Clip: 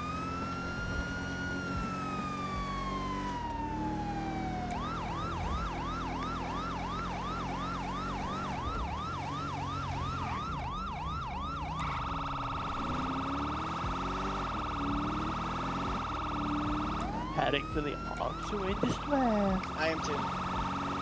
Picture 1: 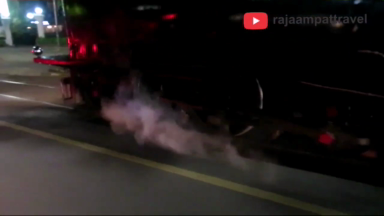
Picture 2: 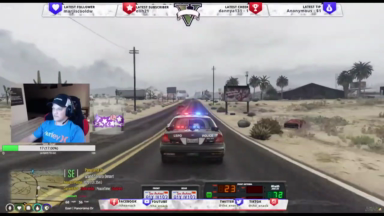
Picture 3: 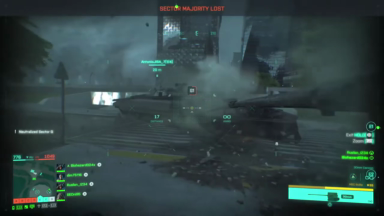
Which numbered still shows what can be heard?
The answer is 2